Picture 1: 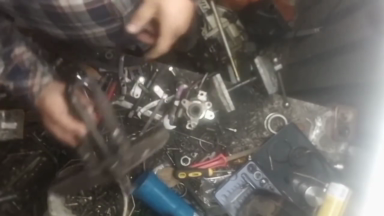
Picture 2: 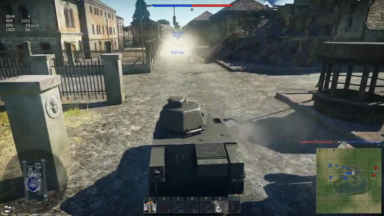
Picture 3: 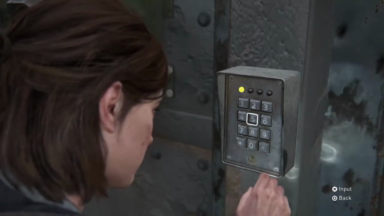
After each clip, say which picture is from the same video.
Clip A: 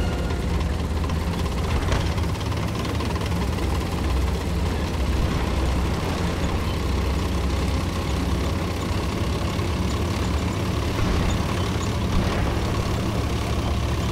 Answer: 2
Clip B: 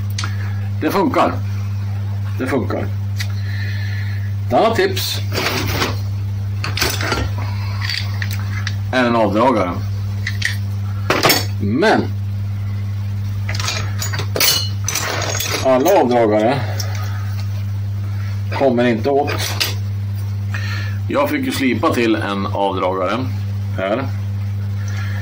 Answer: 1